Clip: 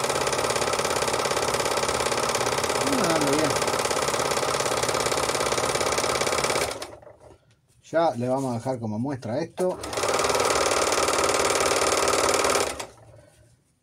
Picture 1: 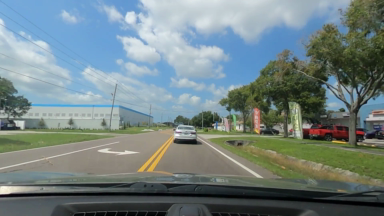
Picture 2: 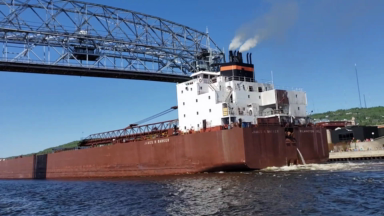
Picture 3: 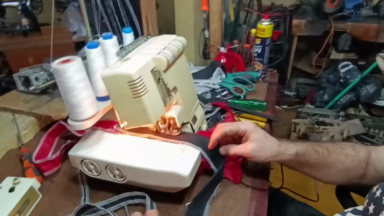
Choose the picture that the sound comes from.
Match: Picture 3